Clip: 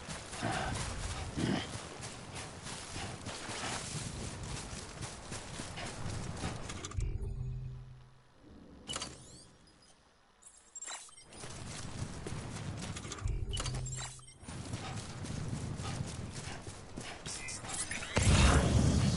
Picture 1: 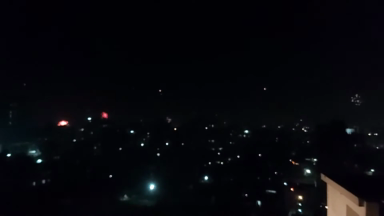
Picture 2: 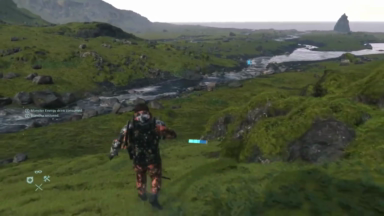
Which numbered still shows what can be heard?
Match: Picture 2